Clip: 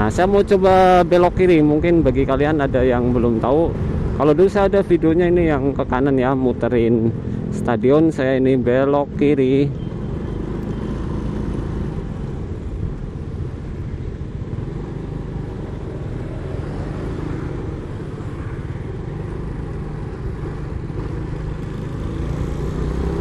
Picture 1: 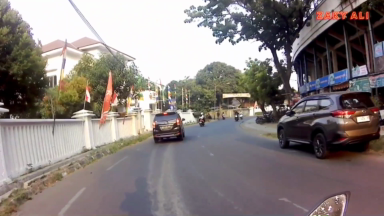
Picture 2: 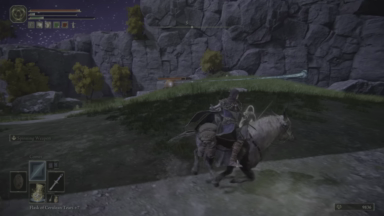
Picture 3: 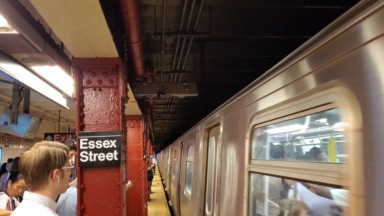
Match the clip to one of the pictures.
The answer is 1